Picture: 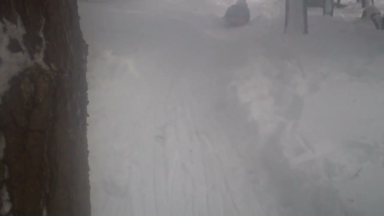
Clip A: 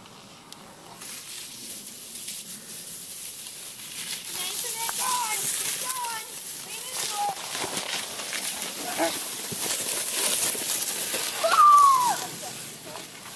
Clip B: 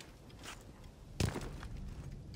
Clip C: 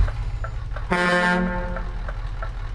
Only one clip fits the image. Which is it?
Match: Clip A